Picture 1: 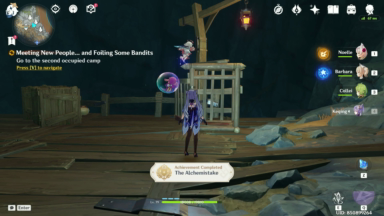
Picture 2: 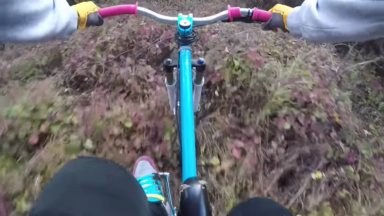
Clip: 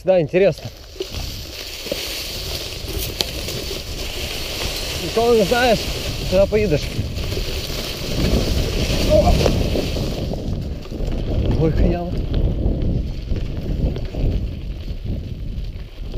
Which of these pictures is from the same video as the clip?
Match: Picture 2